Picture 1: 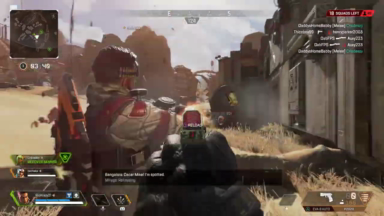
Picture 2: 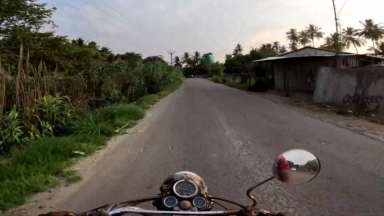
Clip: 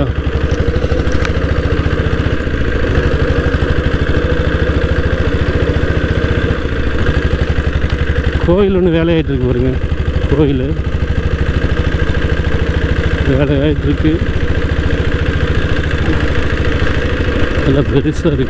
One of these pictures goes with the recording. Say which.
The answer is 2